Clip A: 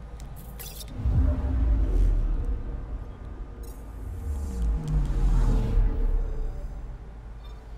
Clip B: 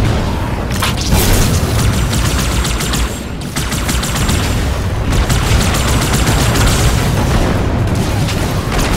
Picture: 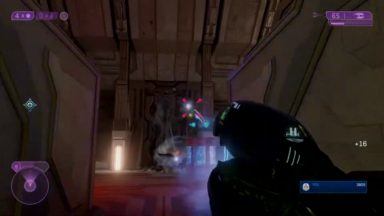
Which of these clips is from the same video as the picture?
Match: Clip B